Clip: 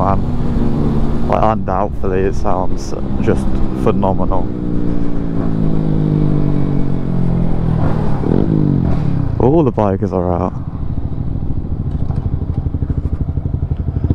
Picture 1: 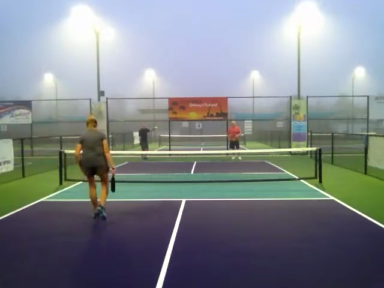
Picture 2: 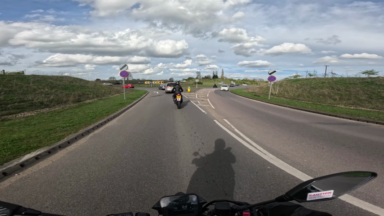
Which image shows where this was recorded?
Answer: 2